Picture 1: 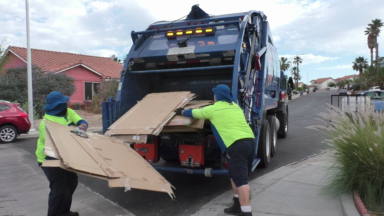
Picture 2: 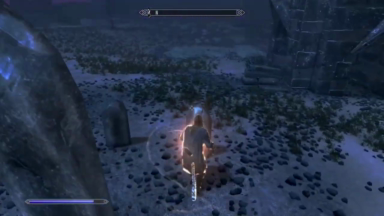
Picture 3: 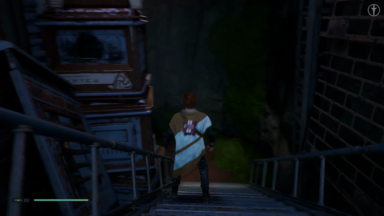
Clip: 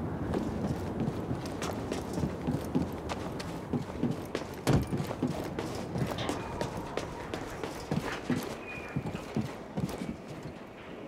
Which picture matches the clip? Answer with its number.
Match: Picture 3